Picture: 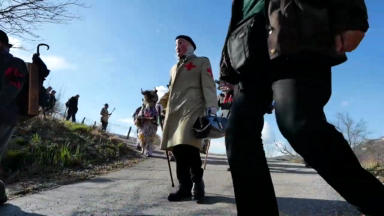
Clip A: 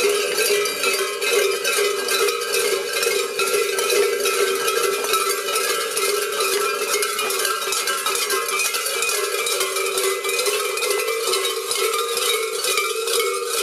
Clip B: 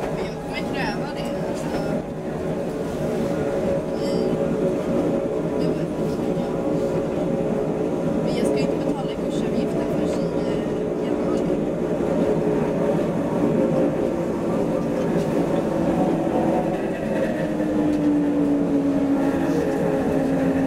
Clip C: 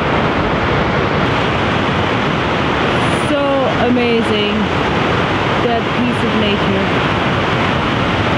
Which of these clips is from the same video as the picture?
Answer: A